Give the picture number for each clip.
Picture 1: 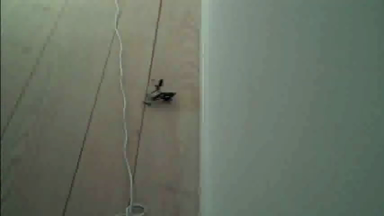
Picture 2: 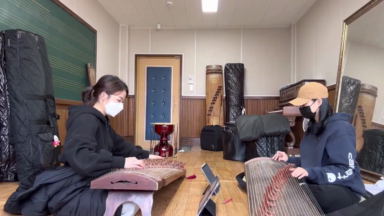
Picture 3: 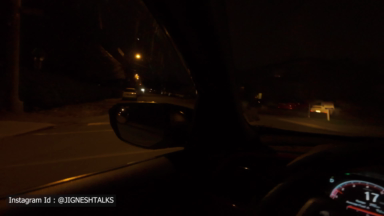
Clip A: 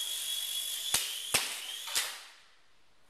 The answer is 1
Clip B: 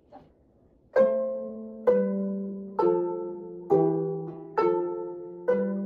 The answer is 2